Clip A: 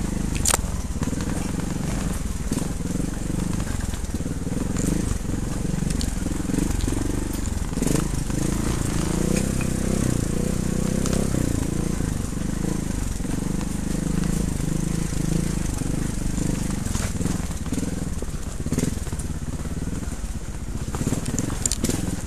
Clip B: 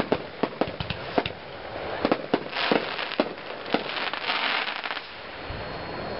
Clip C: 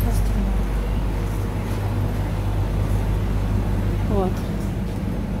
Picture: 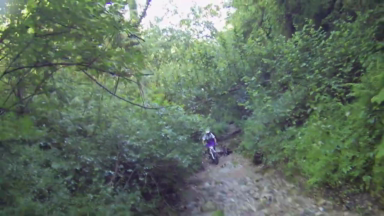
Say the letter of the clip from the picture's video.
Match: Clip A